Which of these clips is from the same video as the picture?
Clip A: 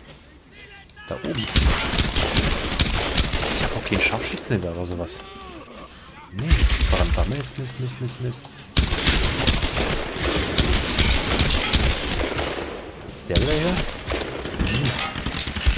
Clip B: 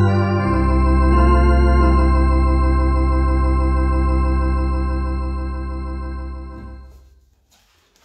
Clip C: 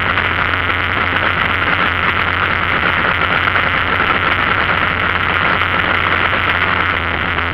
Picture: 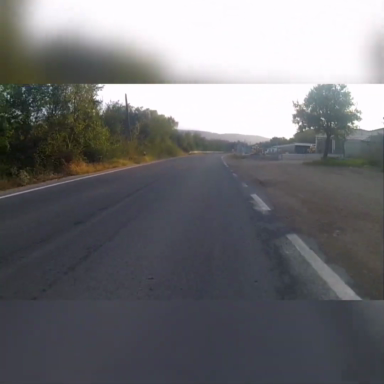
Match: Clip C